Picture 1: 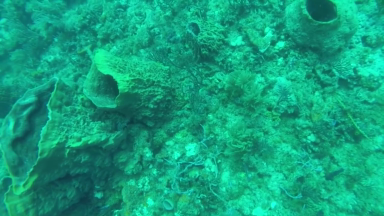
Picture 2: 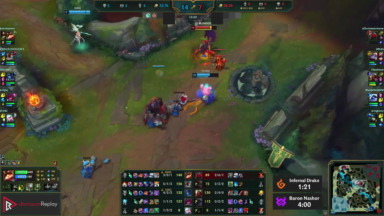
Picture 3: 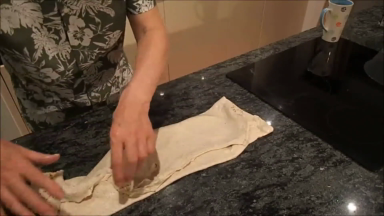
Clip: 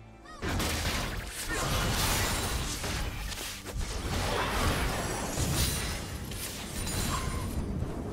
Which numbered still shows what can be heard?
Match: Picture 2